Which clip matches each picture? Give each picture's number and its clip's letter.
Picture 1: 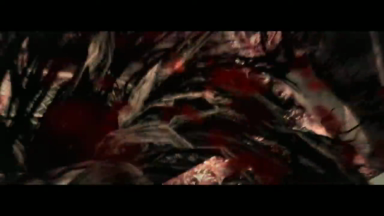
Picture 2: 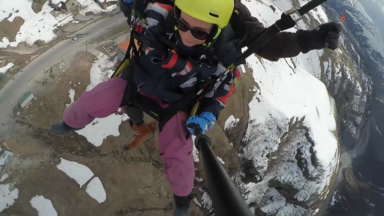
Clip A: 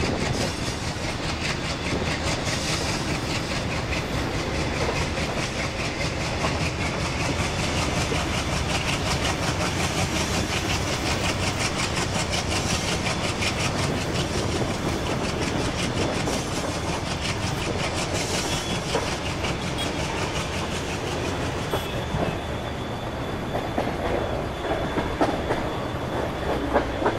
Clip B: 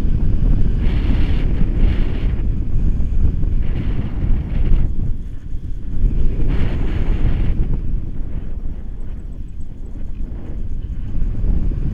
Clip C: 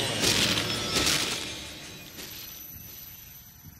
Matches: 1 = C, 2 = B